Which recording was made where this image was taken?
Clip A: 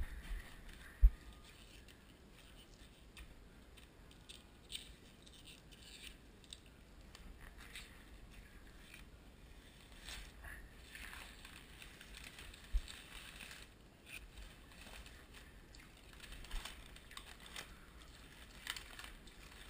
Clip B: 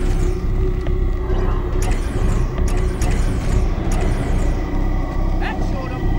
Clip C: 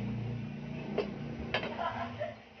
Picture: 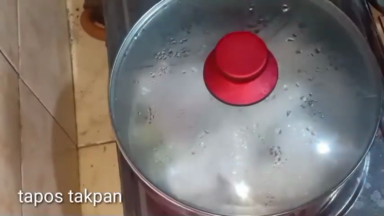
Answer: C